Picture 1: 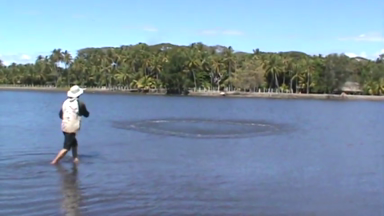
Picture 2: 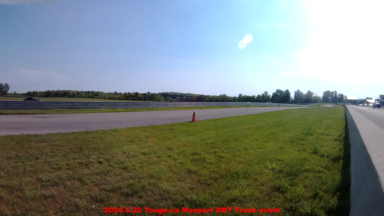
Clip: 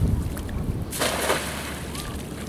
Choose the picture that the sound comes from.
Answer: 1